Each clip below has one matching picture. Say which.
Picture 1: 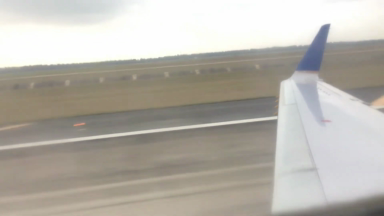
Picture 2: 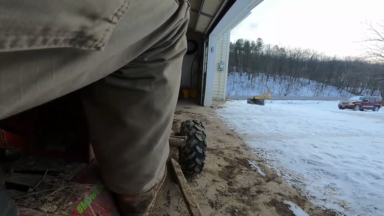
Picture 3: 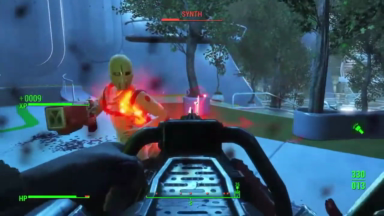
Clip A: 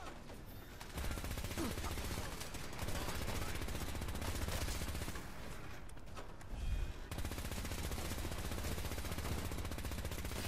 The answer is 3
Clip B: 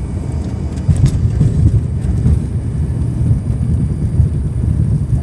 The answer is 1